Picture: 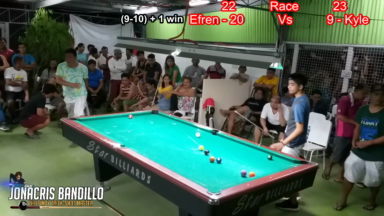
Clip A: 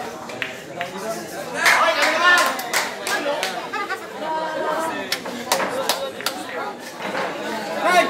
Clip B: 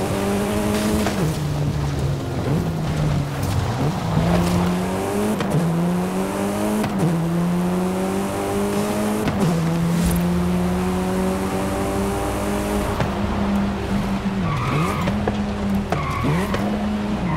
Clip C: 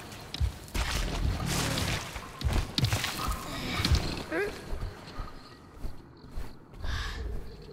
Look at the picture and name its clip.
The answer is A